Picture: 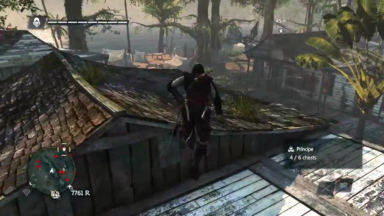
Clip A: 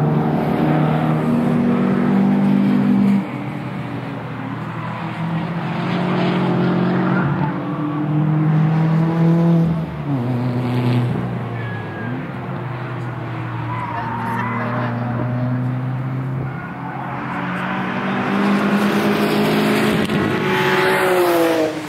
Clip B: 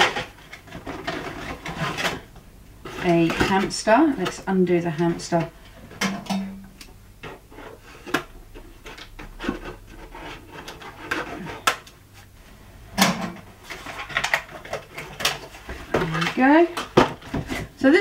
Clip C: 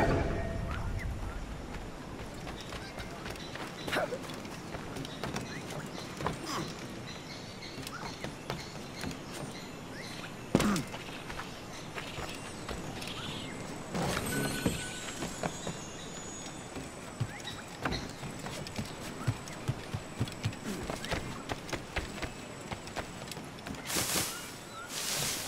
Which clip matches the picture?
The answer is C